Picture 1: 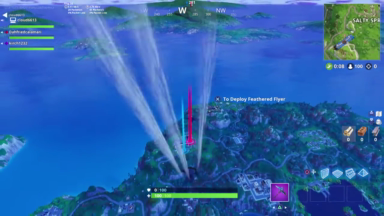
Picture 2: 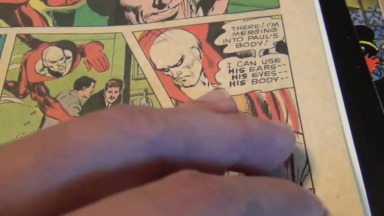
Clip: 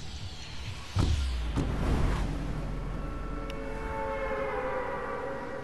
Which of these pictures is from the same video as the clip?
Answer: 1